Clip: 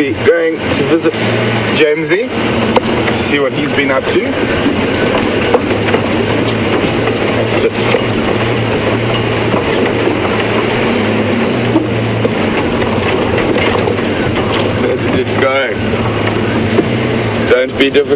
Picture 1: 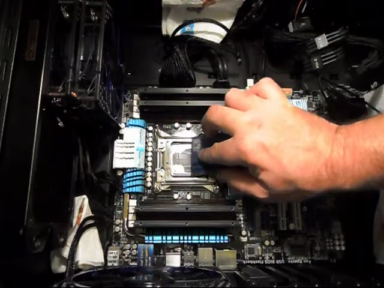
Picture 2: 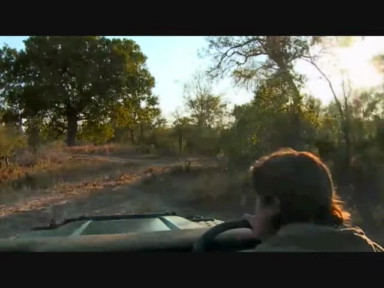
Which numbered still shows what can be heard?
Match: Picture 2